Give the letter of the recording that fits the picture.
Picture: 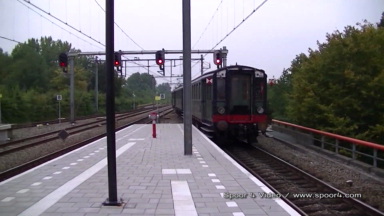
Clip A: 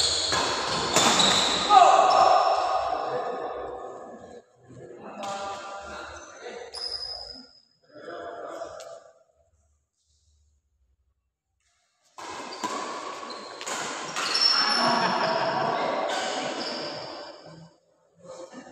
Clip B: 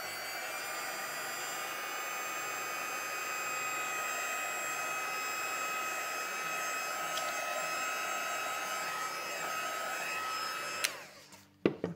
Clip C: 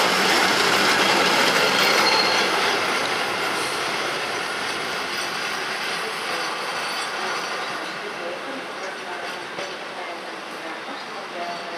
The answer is C